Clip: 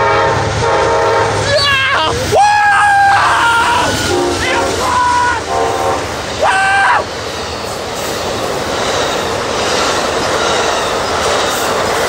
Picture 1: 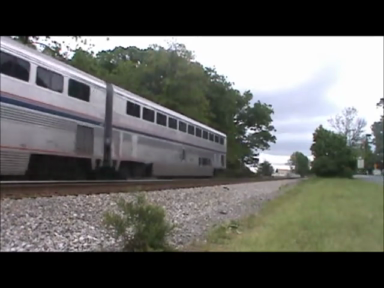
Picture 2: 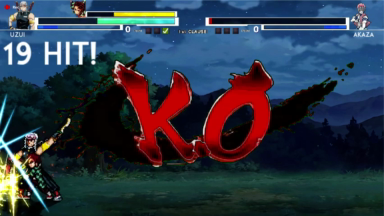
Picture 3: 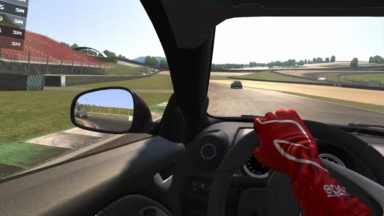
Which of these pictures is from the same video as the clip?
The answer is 1